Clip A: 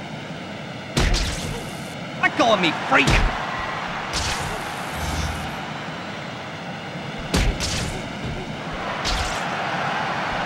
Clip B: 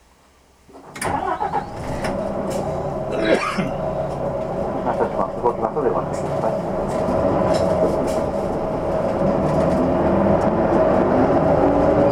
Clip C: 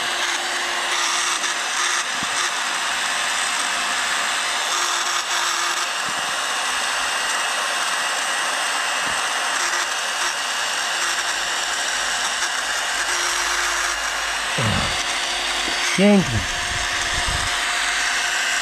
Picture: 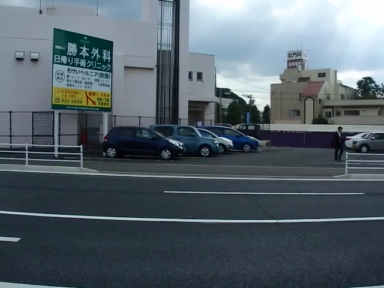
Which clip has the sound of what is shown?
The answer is B